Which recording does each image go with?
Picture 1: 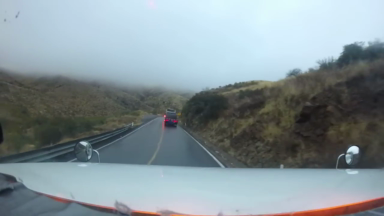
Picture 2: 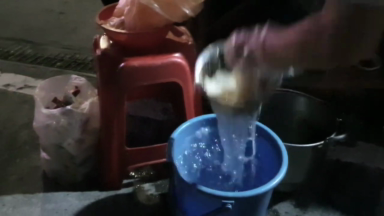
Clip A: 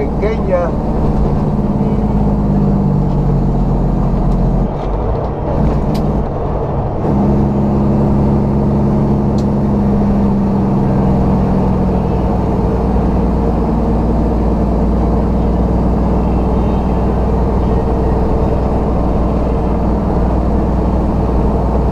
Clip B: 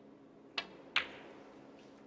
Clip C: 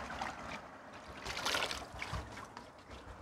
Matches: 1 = A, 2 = C